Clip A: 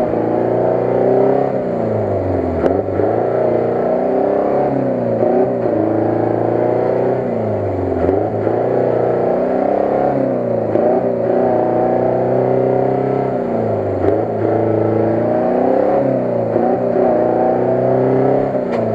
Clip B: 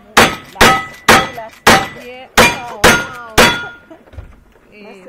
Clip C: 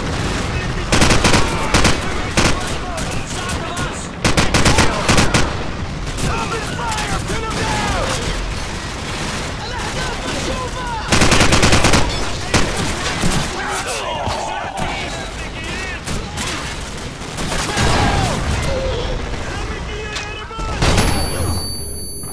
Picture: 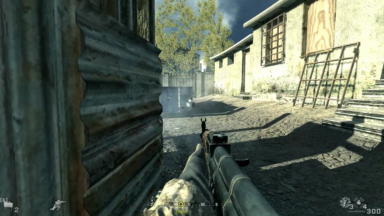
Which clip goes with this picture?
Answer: C